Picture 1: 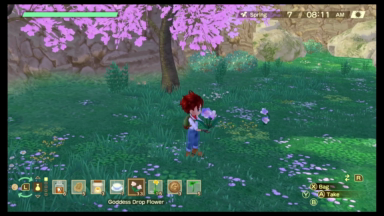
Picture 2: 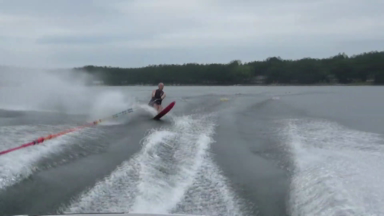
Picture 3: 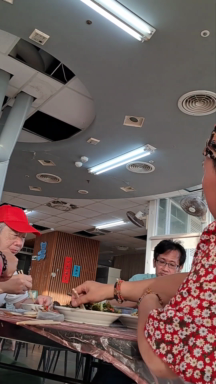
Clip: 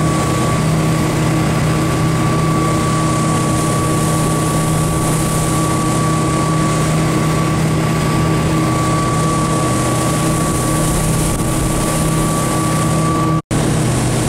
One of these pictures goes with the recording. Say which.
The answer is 2